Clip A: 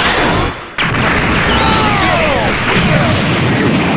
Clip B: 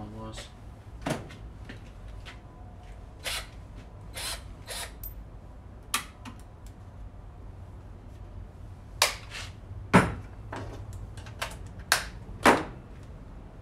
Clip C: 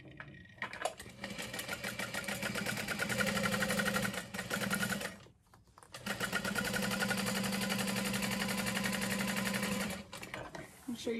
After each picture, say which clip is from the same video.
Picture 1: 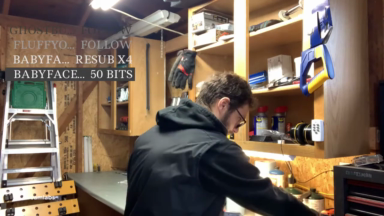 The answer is B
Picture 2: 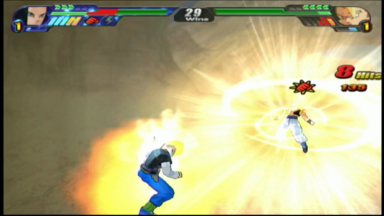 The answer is A